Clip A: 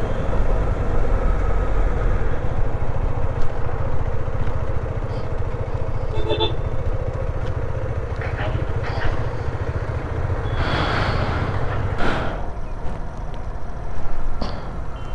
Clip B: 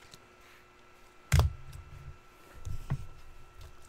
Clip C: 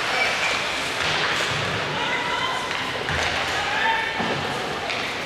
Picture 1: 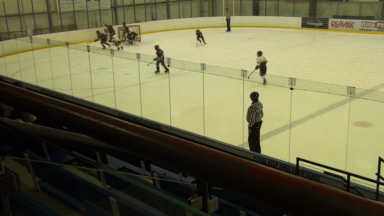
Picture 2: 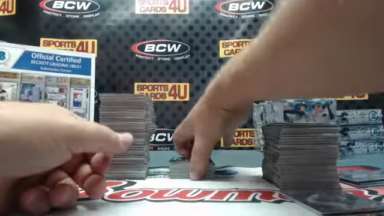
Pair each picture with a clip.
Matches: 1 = C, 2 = B